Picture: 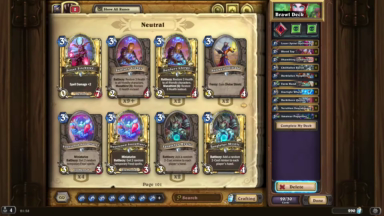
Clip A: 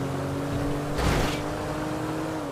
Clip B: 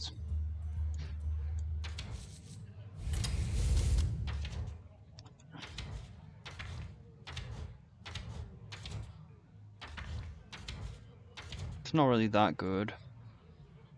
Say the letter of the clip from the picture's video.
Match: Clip B